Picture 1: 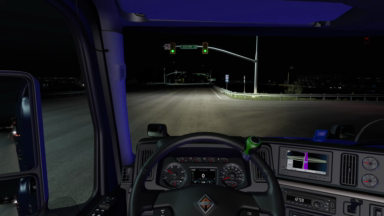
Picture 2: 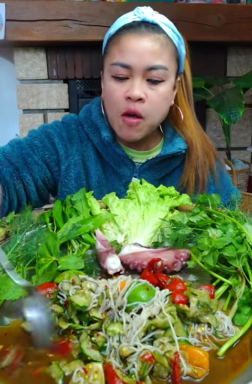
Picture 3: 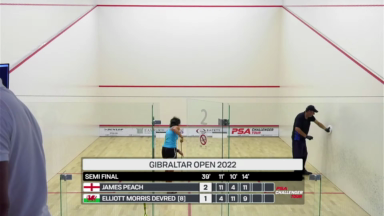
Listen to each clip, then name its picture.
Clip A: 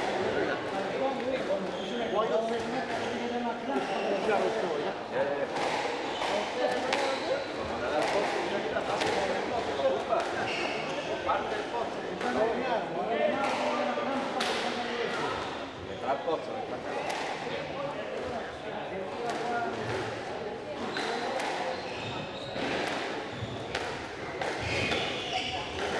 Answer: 3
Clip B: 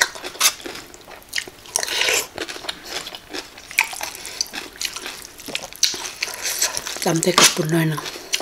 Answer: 2